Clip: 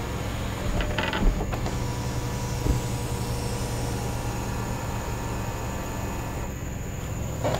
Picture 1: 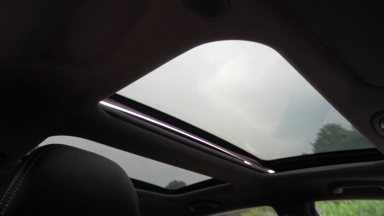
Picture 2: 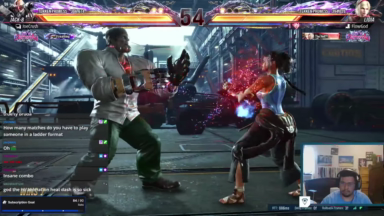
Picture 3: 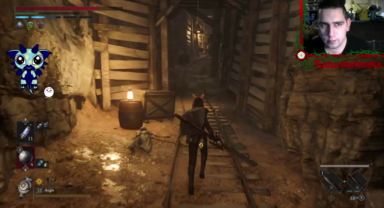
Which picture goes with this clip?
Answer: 1